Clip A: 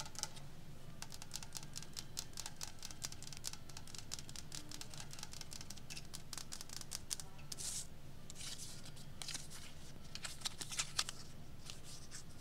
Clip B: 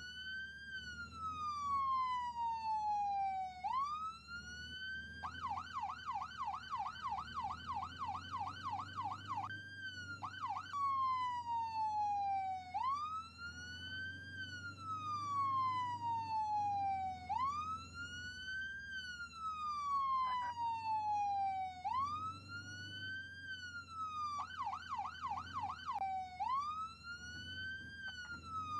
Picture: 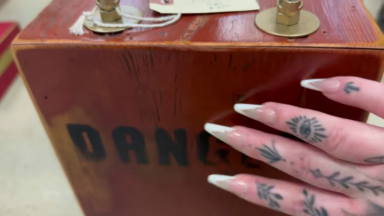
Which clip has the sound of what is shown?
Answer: A